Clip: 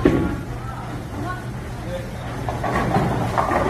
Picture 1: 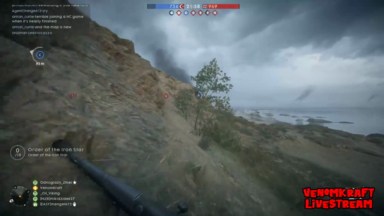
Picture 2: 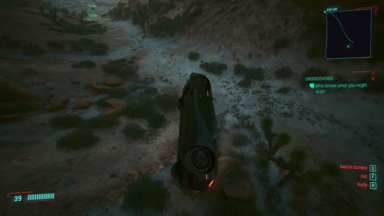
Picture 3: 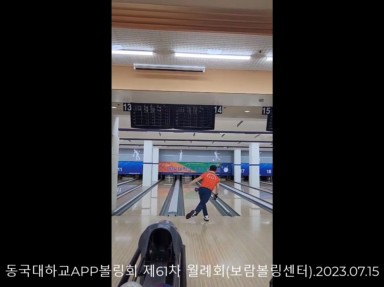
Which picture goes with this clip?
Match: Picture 3